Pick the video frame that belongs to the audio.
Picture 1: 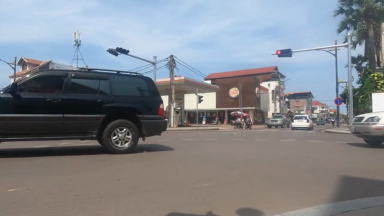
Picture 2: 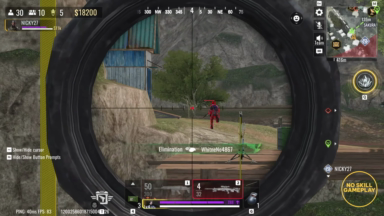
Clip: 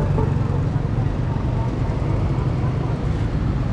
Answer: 1